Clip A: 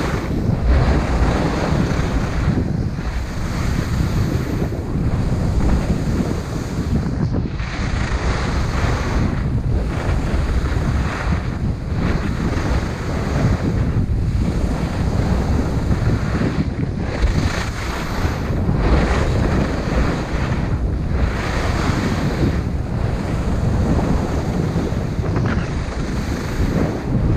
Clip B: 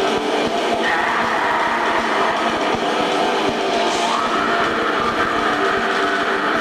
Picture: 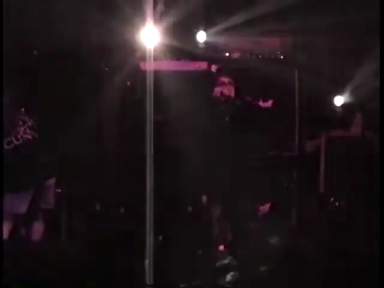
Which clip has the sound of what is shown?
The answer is B